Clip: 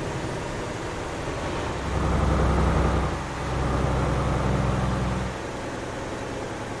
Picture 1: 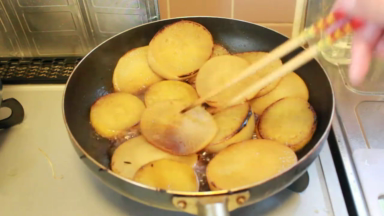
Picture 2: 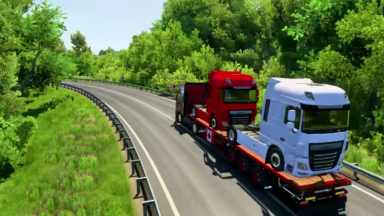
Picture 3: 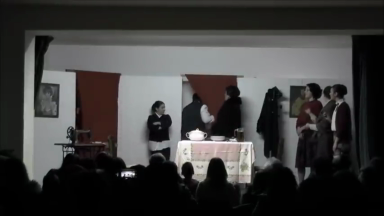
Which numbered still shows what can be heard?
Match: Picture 2